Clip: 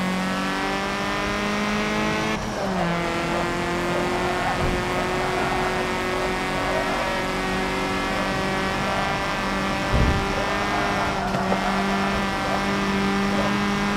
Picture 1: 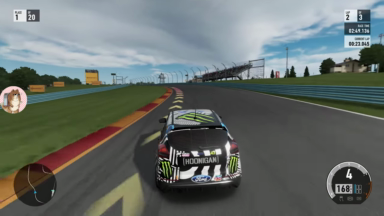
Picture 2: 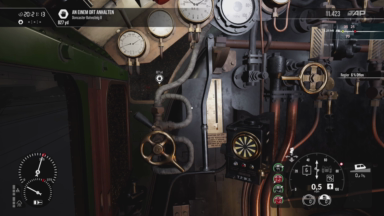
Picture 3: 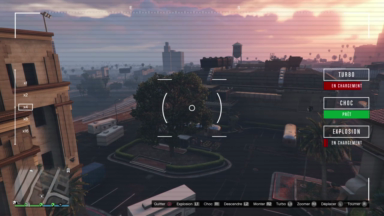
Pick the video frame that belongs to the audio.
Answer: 1